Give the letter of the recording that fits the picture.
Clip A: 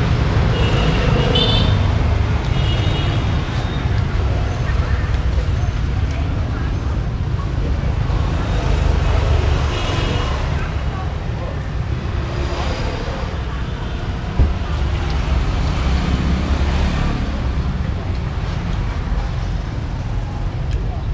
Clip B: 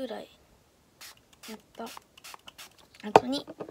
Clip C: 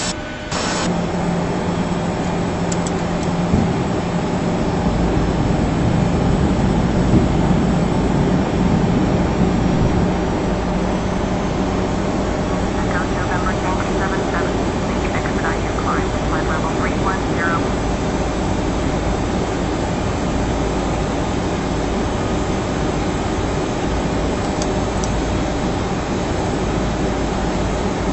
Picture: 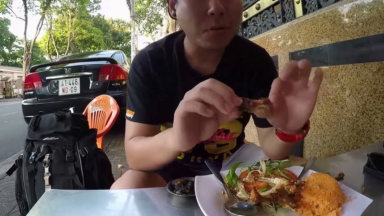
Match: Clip A